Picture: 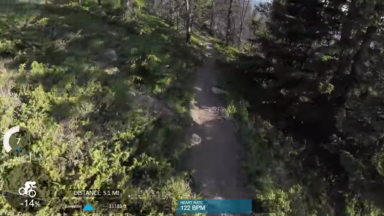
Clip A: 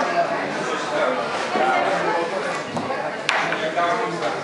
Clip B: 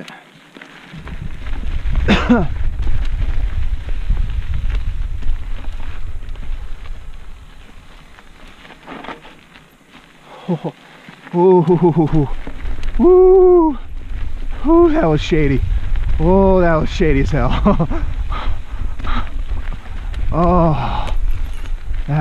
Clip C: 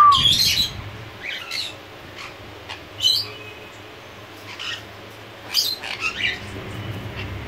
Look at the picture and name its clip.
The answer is B